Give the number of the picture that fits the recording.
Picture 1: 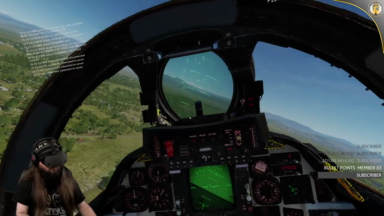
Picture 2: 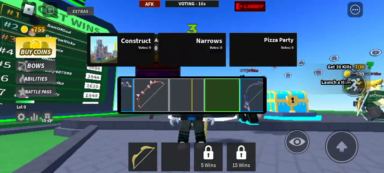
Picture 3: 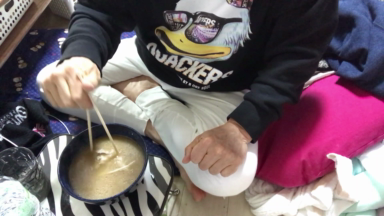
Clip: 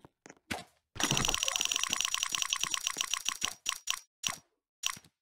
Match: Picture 2